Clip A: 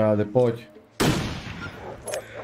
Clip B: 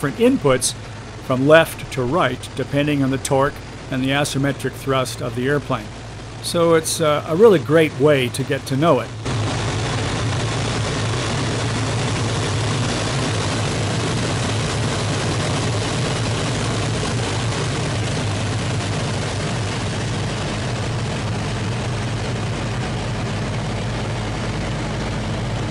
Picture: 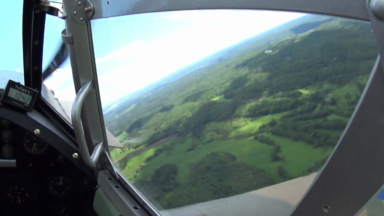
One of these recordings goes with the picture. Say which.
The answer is B